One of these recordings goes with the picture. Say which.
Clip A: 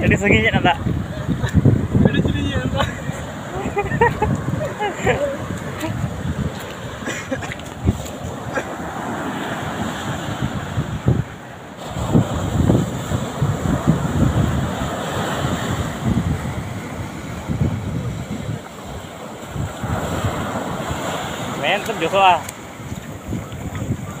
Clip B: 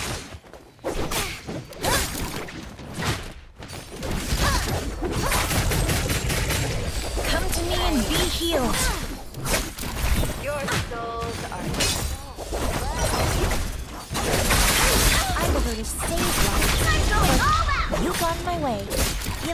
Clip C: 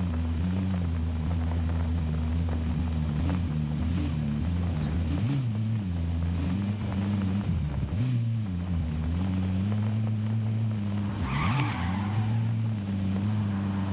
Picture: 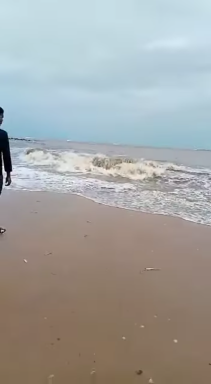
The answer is A